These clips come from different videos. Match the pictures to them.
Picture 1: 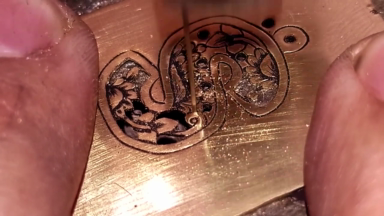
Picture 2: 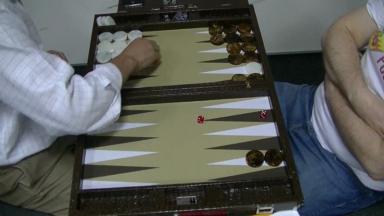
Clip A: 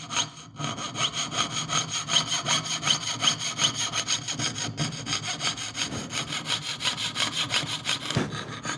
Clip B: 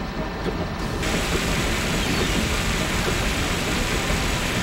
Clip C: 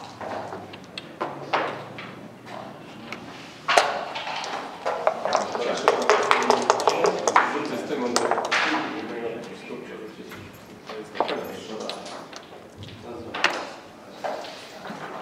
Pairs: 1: A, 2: C